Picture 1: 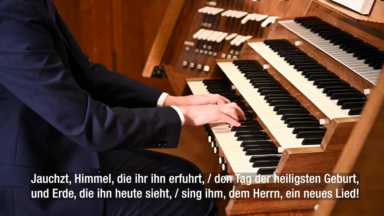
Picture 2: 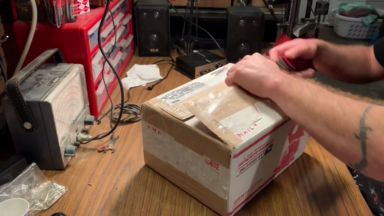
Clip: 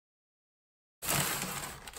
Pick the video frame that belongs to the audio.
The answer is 2